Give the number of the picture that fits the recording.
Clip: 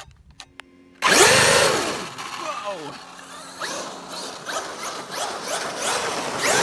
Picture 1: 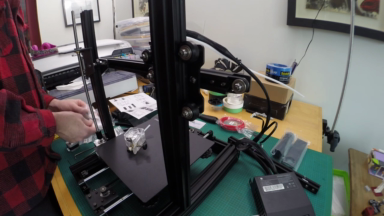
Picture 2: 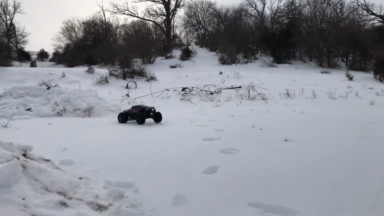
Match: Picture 2